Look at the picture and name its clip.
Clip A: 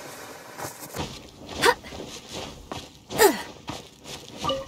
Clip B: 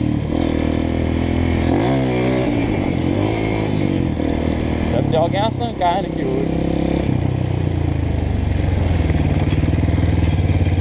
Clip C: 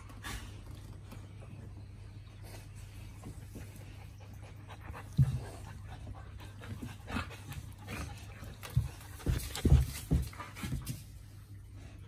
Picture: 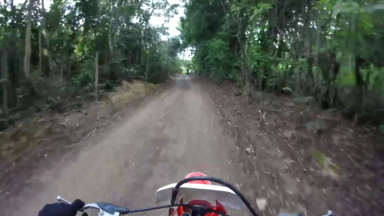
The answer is B